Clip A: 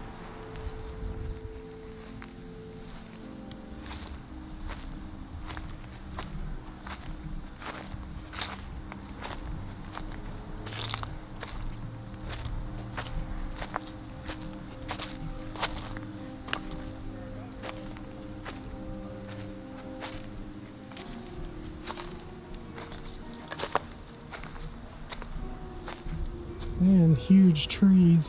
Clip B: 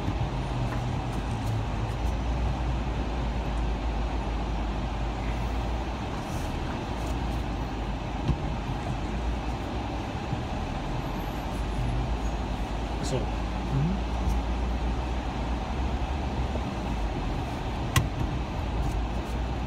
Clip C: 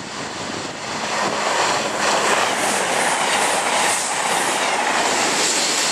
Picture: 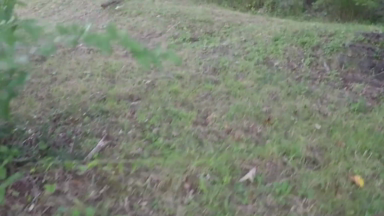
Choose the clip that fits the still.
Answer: A